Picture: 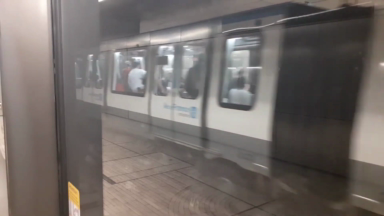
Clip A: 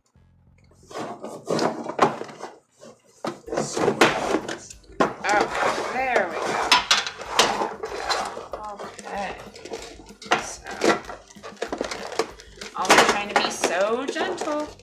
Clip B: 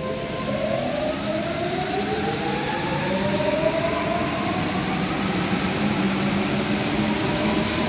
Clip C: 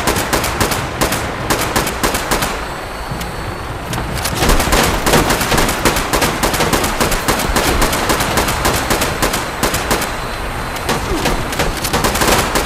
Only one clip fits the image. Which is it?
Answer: B